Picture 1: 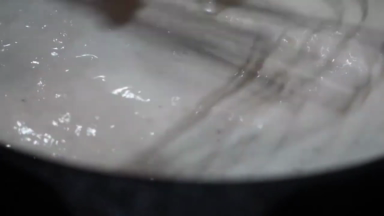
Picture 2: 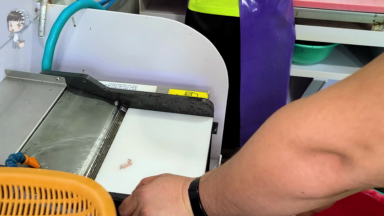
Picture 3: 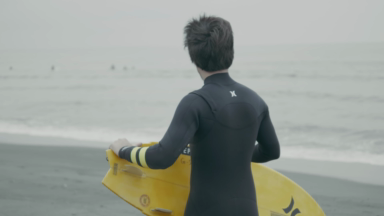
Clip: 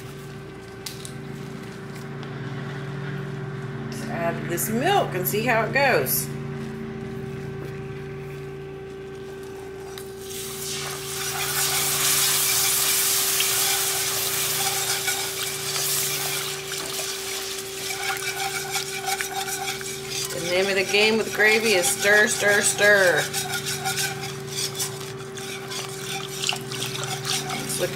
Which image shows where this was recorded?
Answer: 1